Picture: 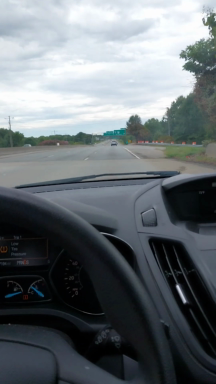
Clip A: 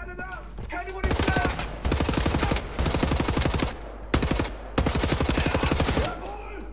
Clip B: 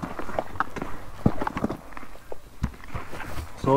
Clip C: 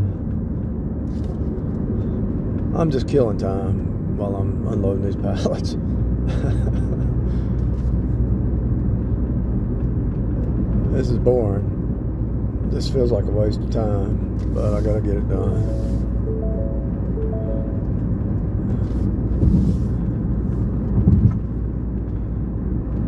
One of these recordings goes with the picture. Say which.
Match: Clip C